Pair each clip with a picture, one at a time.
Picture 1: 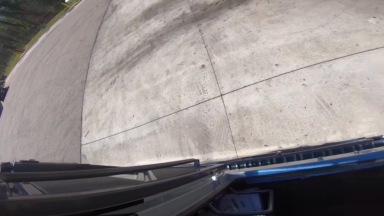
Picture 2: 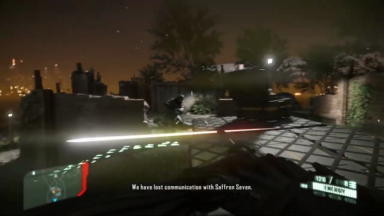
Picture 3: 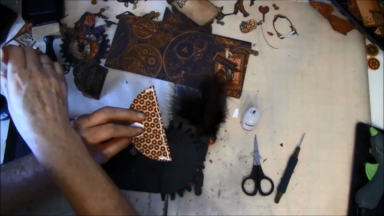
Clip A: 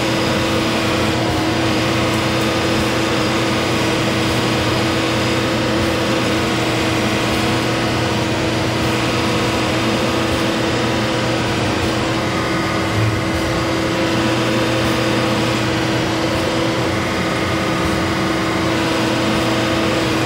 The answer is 1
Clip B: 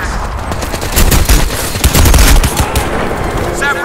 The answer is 2